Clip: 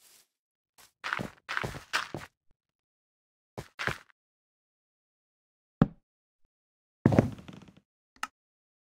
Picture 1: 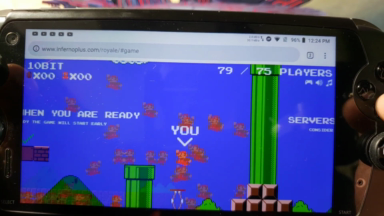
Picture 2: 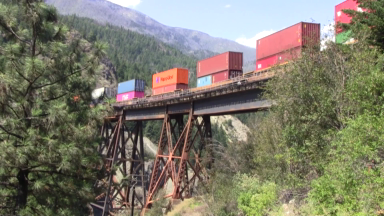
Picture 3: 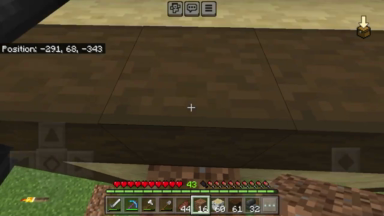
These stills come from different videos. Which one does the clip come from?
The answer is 3